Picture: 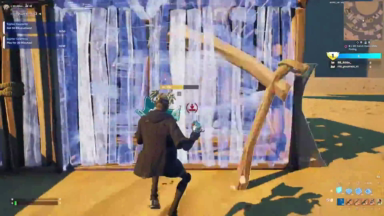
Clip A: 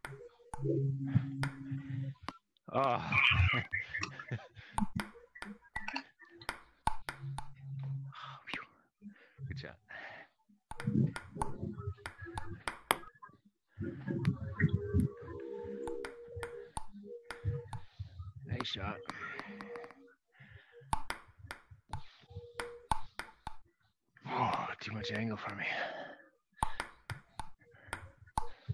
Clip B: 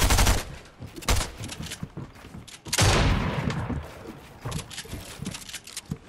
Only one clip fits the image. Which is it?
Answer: B